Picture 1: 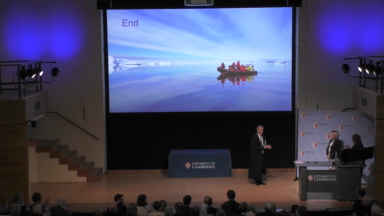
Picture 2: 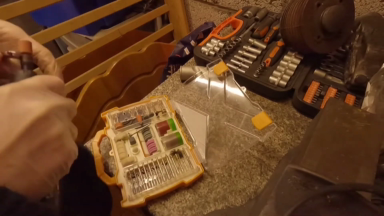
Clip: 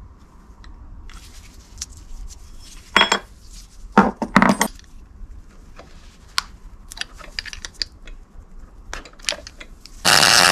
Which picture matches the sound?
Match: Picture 2